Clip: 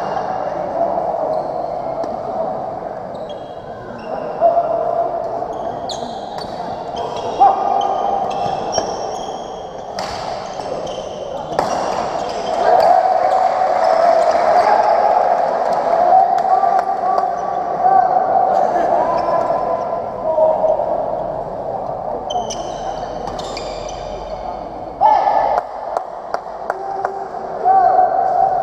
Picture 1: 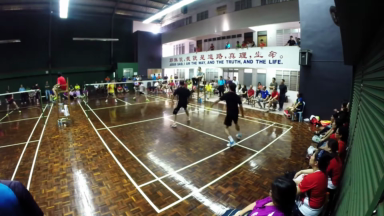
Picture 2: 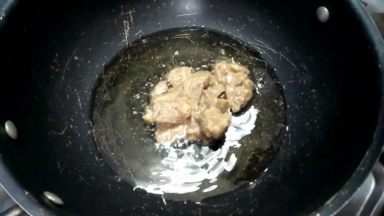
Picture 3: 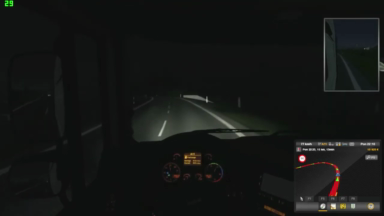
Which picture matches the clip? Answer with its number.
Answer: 1